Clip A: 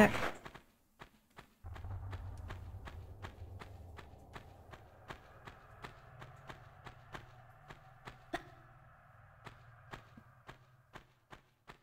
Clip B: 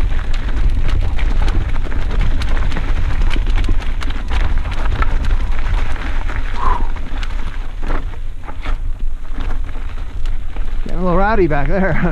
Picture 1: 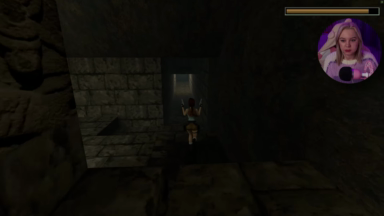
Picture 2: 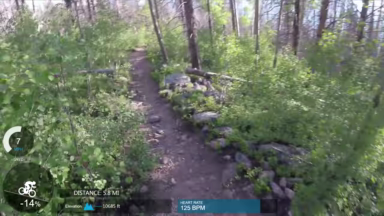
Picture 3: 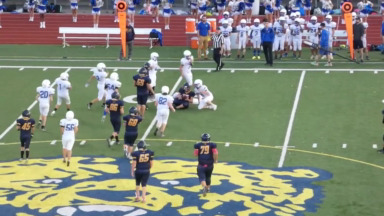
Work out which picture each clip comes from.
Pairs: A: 1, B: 2